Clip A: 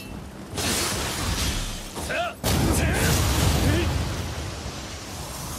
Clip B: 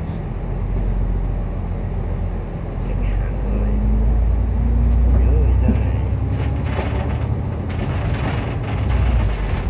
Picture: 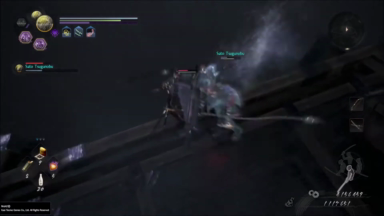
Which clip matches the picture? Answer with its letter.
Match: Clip A